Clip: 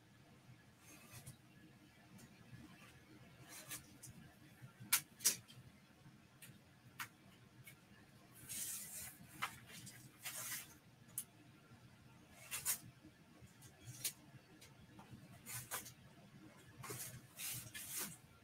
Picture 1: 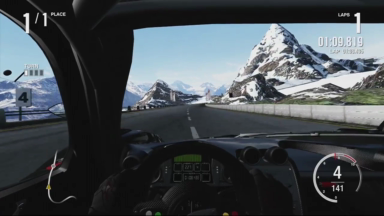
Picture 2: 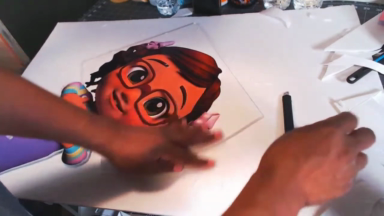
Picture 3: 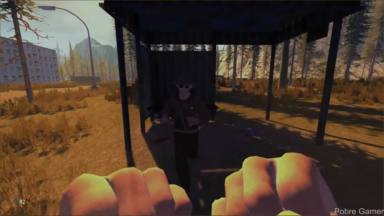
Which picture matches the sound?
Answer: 2